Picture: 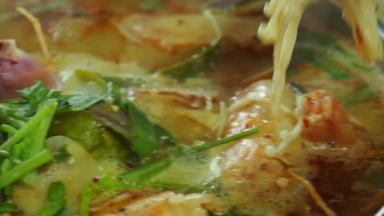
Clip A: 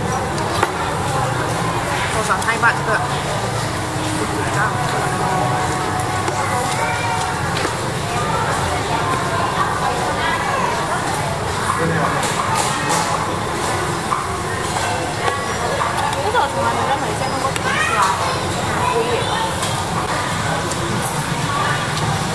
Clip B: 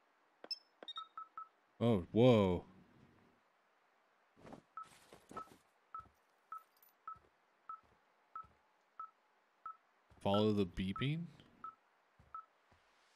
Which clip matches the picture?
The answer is A